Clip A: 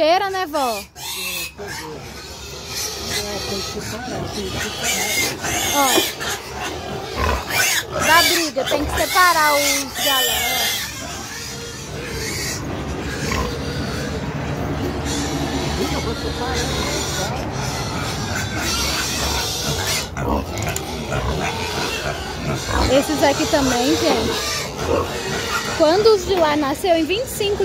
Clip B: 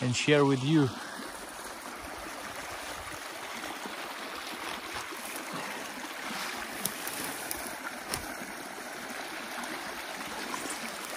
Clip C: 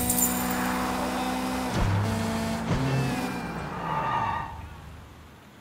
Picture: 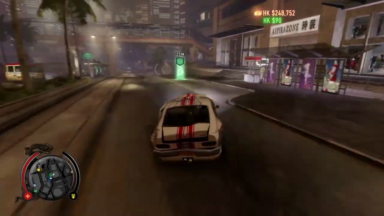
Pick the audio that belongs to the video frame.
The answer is C